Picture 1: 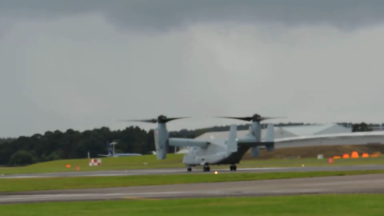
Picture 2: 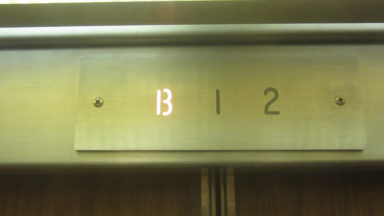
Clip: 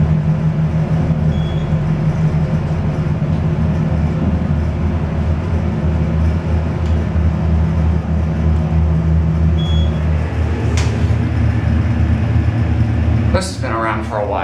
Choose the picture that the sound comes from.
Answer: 2